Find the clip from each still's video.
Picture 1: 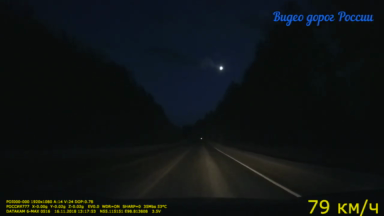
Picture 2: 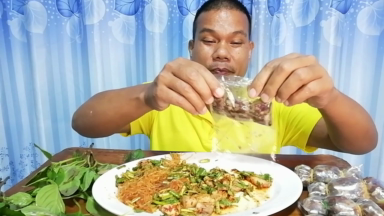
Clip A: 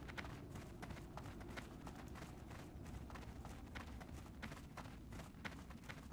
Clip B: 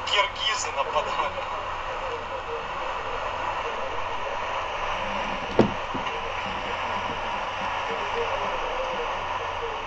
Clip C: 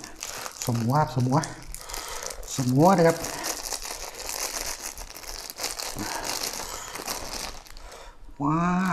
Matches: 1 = B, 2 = C